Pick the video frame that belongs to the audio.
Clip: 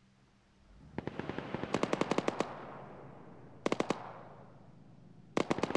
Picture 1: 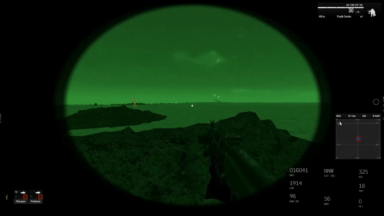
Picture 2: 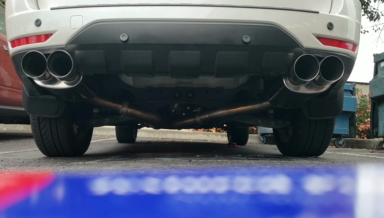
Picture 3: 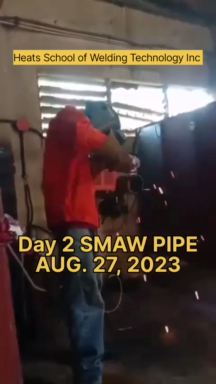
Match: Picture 1